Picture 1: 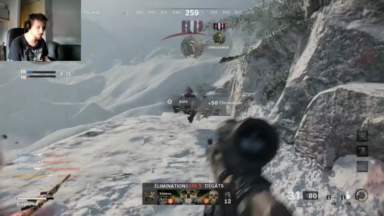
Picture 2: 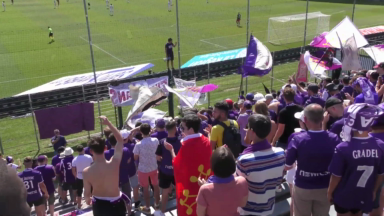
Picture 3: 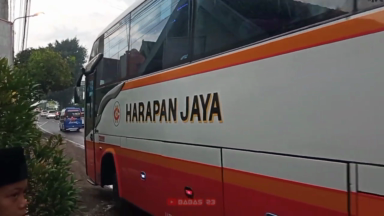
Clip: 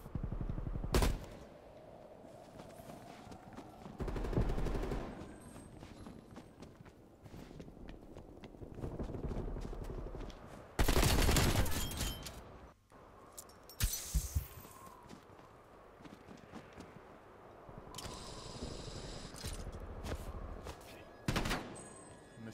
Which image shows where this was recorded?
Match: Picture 1